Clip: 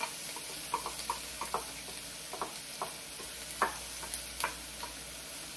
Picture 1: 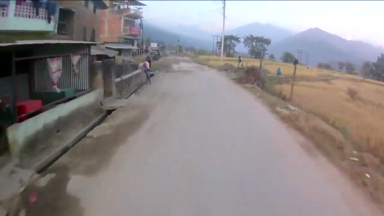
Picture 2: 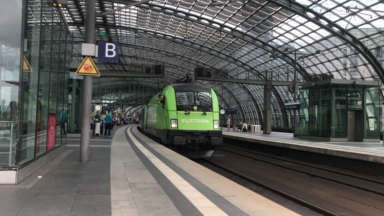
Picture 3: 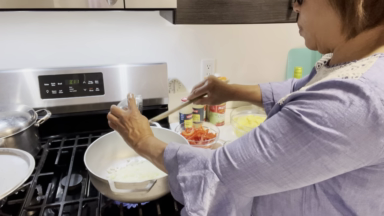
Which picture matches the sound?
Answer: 3